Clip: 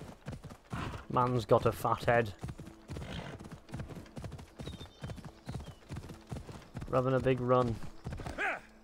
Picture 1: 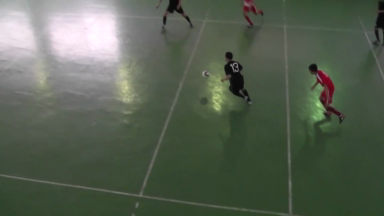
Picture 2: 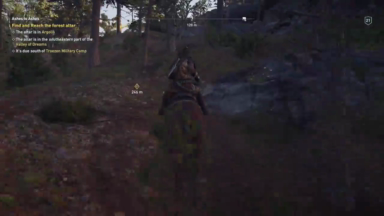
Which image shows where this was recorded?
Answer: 2